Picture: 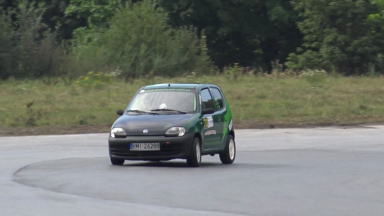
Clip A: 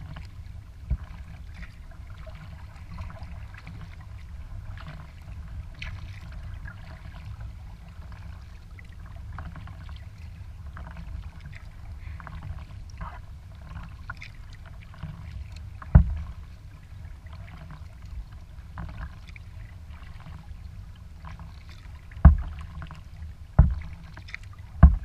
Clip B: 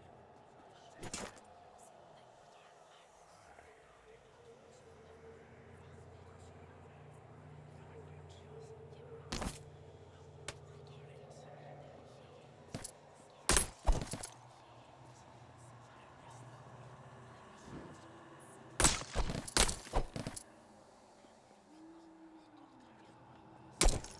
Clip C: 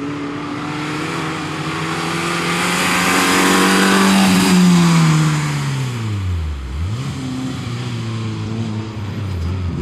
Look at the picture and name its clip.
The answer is C